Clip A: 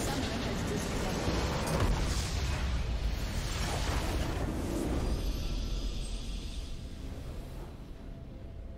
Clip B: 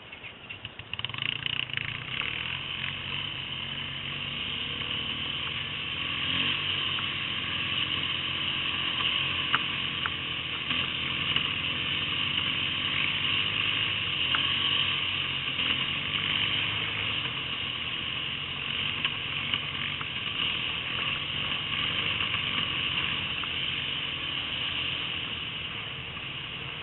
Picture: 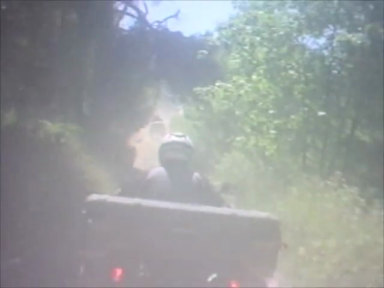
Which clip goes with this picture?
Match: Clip B